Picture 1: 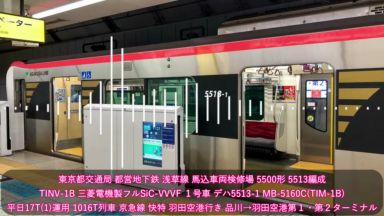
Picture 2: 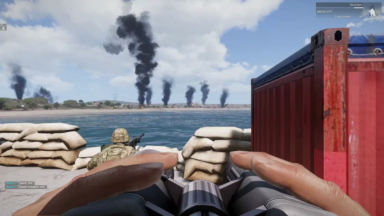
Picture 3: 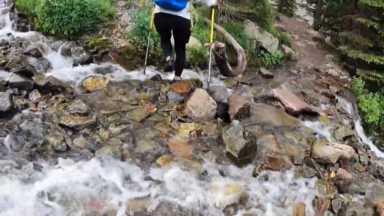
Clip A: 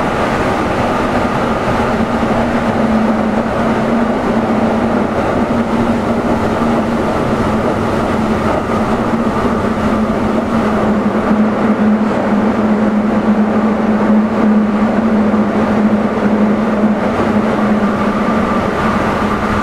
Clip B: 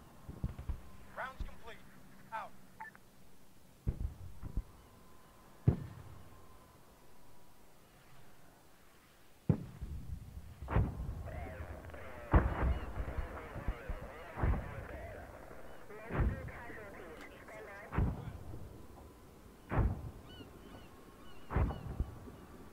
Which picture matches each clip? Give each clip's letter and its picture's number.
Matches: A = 1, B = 2